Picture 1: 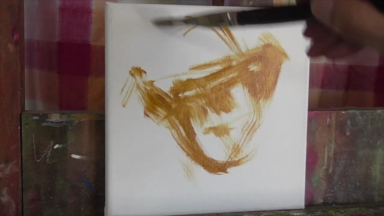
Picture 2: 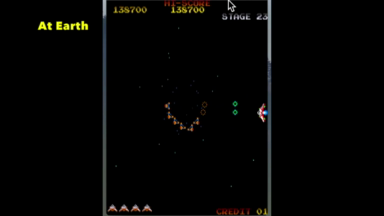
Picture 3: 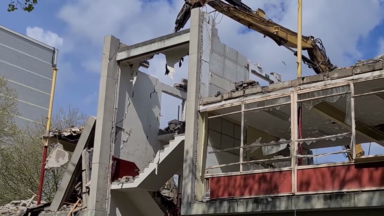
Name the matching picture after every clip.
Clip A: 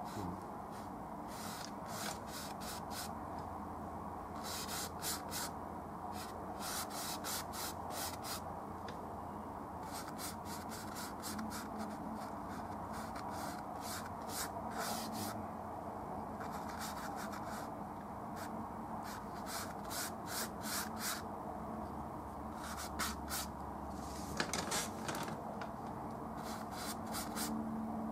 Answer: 1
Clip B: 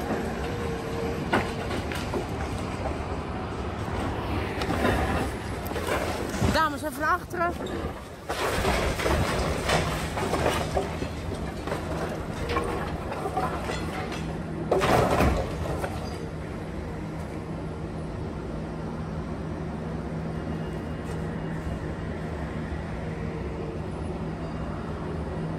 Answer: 3